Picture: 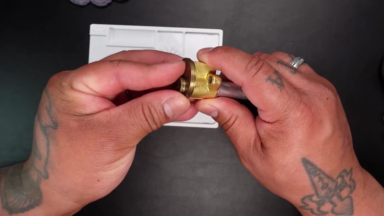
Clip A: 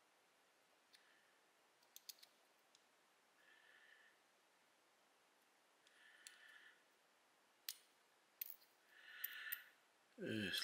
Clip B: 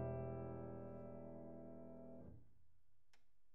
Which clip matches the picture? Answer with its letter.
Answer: A